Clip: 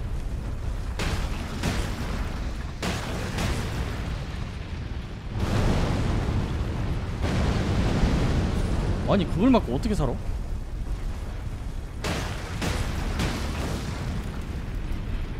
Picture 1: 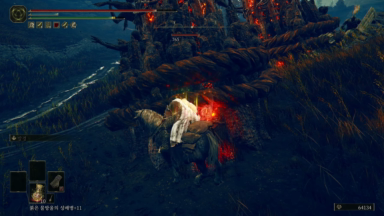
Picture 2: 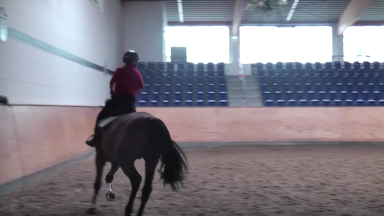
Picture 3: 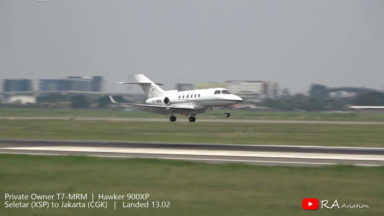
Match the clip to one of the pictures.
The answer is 1